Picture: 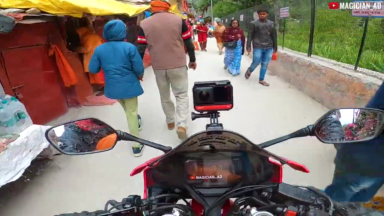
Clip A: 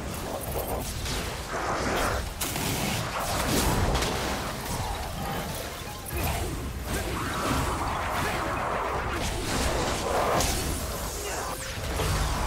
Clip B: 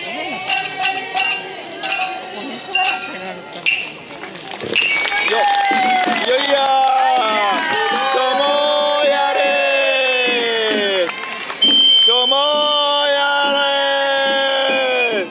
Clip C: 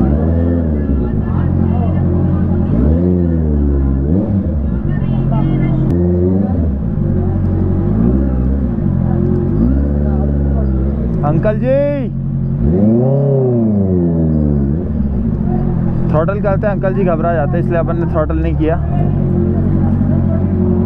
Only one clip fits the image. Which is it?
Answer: C